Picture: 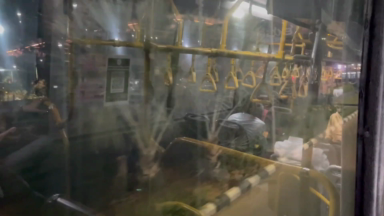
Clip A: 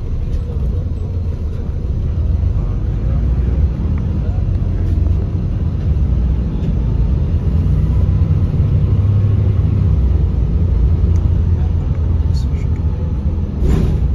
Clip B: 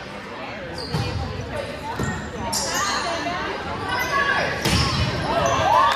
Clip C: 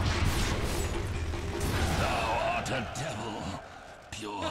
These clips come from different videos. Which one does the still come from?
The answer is A